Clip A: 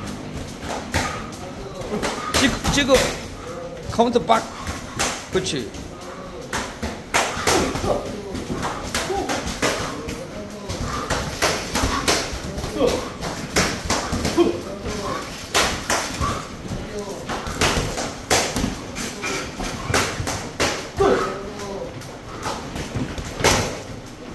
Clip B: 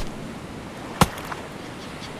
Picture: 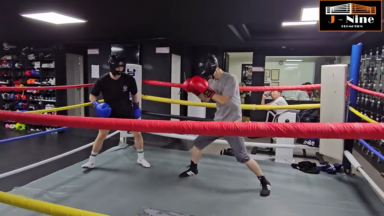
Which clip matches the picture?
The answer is A